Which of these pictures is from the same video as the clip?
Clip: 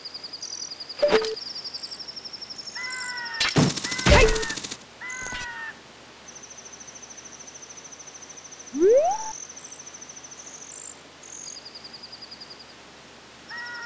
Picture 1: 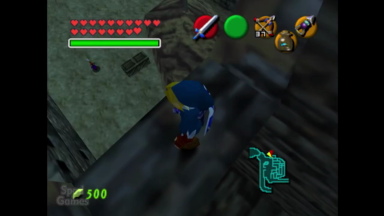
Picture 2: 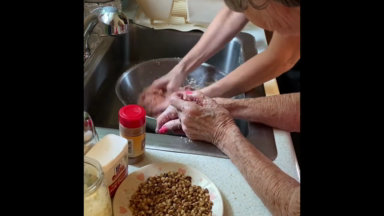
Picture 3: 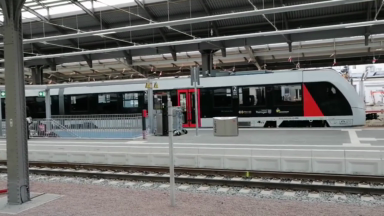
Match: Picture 1